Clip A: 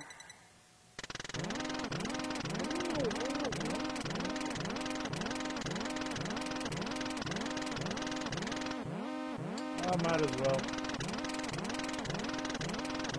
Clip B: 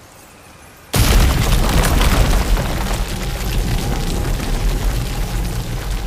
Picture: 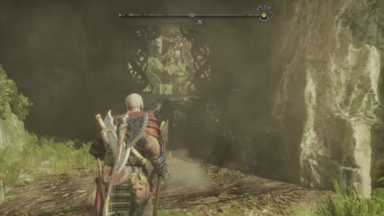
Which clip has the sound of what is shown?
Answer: B